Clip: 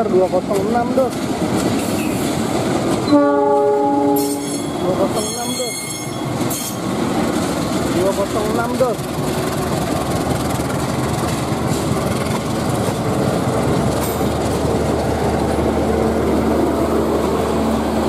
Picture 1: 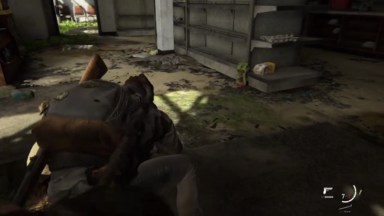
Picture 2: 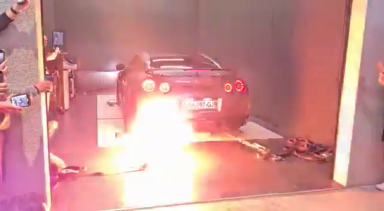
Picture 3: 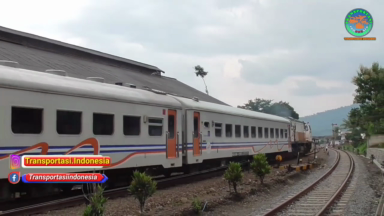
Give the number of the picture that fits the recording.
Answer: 3